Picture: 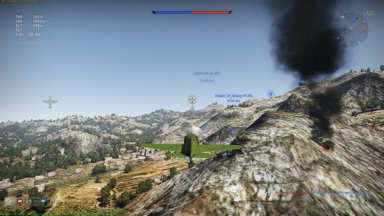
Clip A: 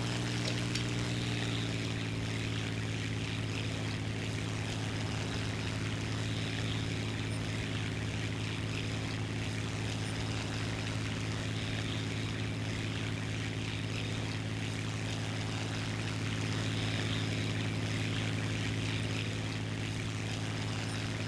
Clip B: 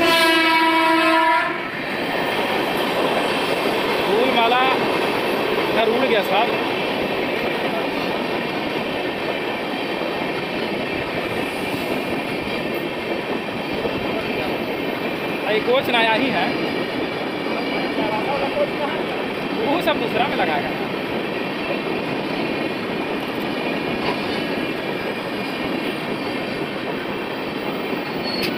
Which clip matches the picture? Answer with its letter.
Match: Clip A